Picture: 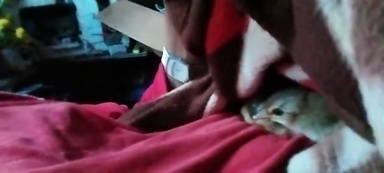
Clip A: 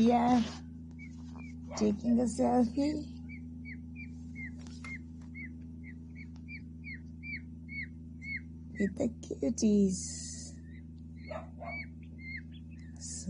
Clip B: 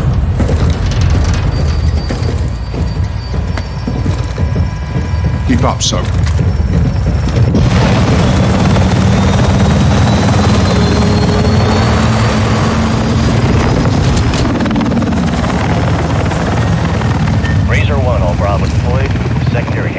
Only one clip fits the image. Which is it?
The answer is A